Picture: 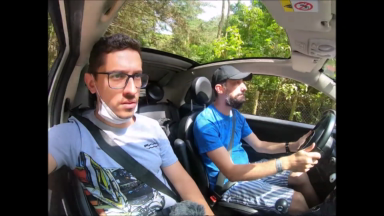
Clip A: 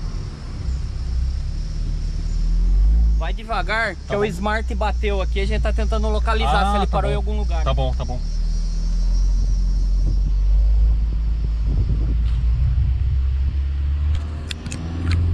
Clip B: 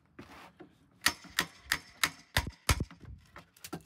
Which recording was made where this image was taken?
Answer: A